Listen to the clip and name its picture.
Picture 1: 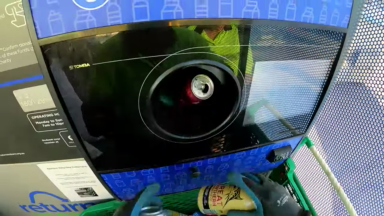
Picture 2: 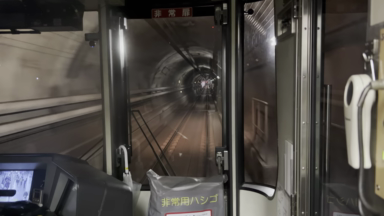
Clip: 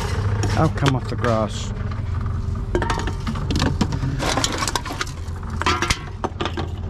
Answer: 1